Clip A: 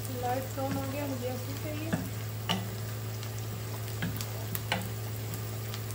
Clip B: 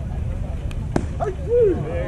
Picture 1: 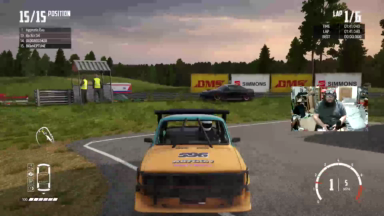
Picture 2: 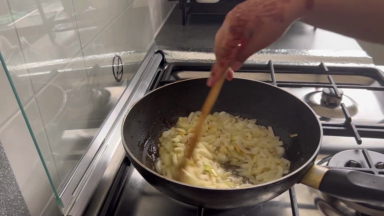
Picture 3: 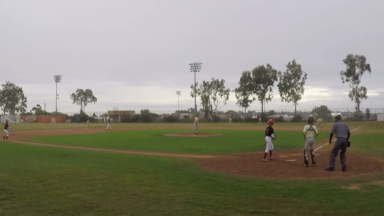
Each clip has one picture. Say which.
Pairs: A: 2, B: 3